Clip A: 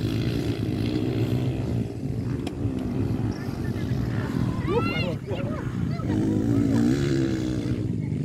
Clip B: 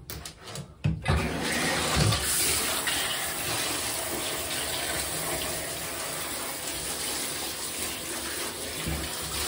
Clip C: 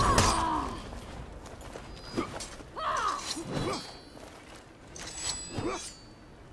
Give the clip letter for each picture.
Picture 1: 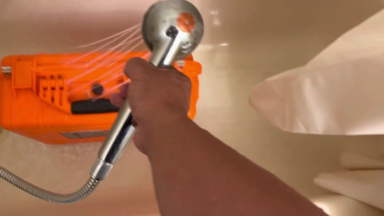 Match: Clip B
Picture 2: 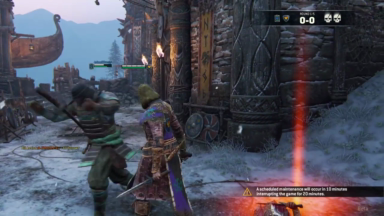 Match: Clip C